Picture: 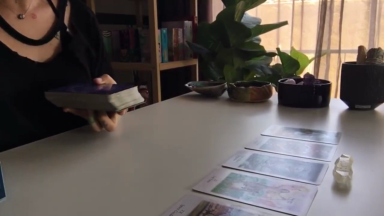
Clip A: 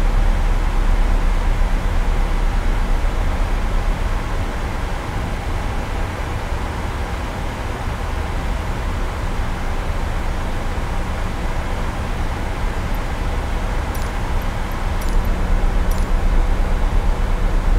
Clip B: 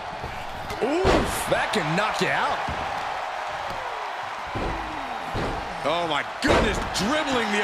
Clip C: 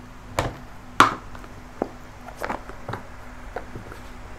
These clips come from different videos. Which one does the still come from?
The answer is C